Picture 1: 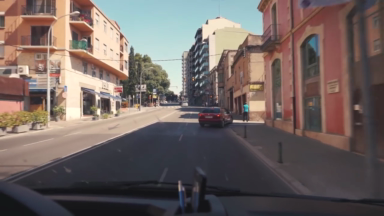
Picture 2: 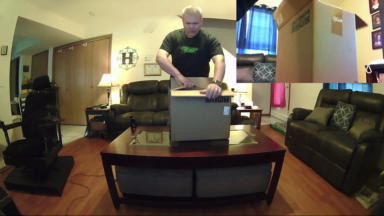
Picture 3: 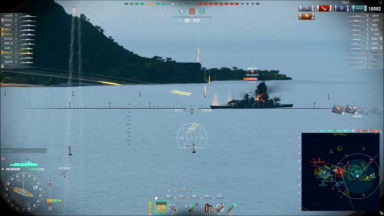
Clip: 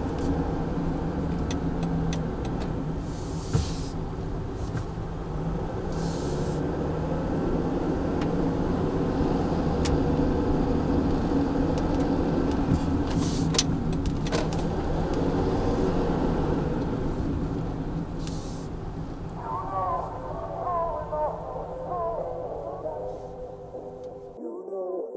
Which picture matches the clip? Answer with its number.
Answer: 1